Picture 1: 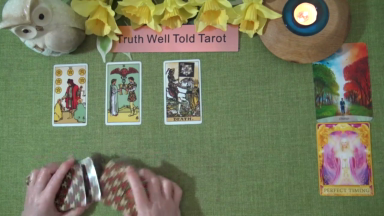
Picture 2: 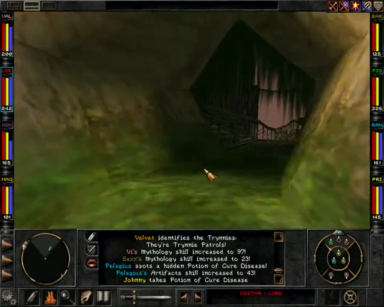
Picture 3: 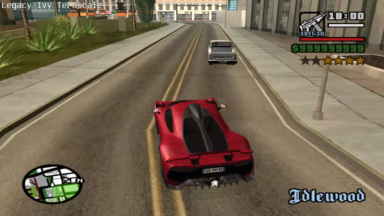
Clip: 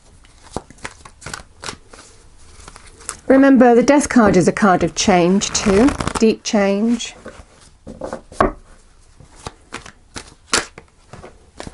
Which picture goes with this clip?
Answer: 1